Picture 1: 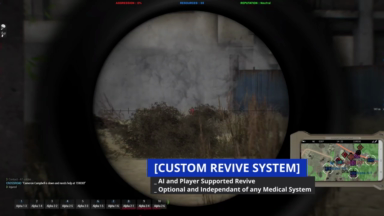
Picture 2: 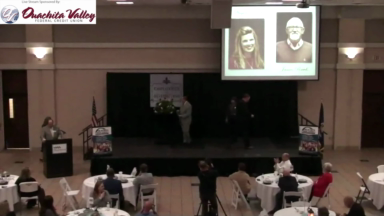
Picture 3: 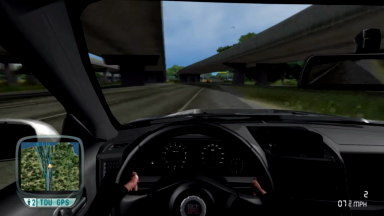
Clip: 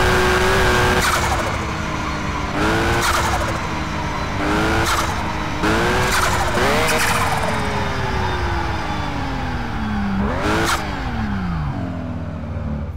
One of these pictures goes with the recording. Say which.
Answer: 3